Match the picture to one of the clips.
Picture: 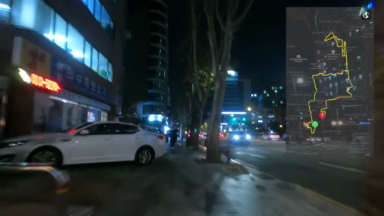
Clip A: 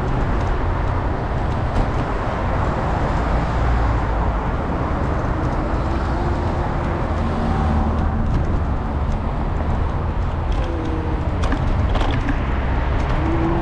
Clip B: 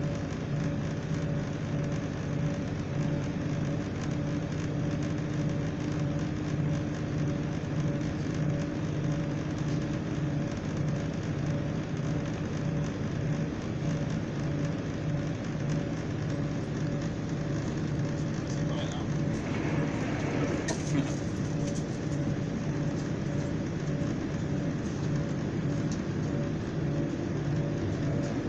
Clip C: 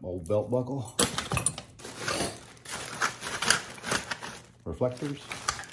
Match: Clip A